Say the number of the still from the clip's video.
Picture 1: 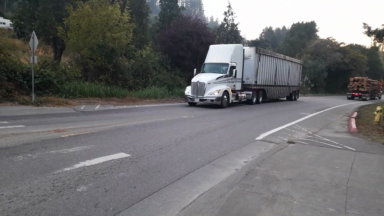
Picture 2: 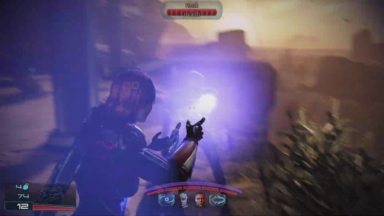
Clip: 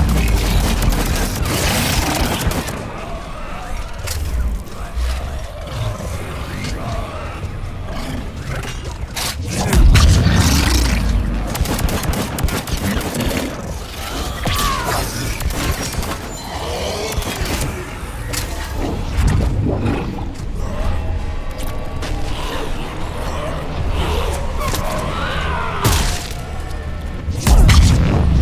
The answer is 2